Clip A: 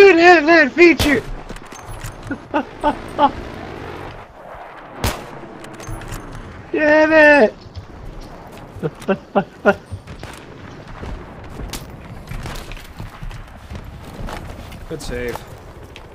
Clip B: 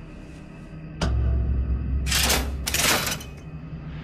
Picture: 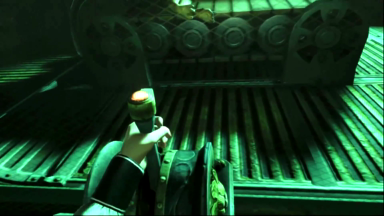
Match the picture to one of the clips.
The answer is B